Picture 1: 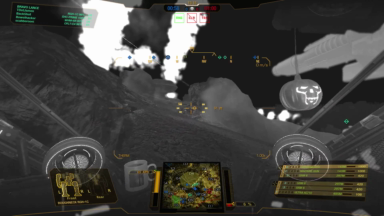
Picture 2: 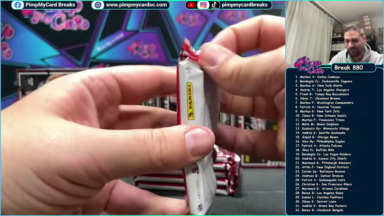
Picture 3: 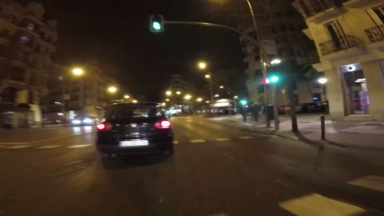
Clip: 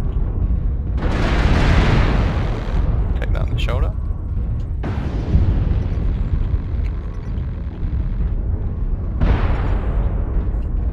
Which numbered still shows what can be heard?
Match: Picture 1